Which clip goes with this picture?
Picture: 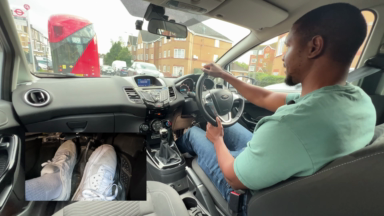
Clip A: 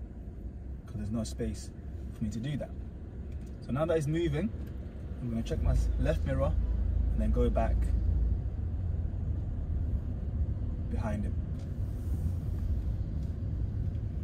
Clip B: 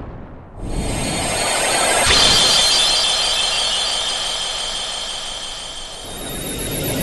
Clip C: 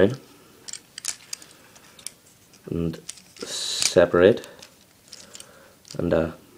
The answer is A